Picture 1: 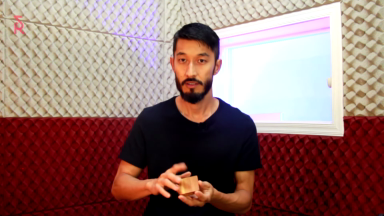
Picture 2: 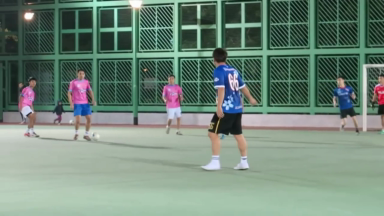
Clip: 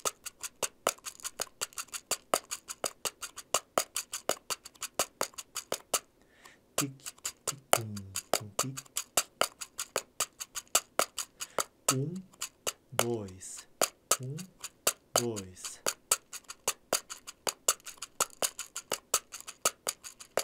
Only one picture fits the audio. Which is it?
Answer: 1